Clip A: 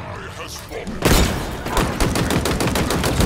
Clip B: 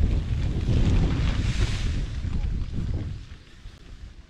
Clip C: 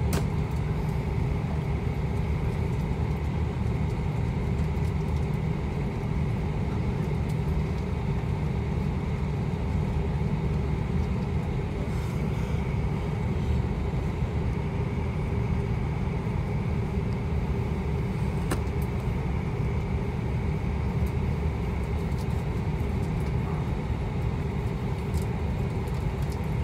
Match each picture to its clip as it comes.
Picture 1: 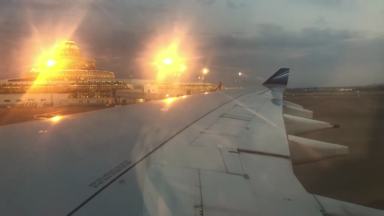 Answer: C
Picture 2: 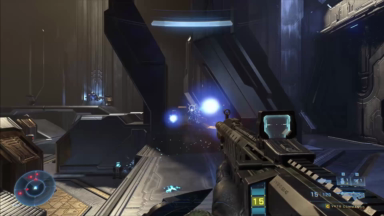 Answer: A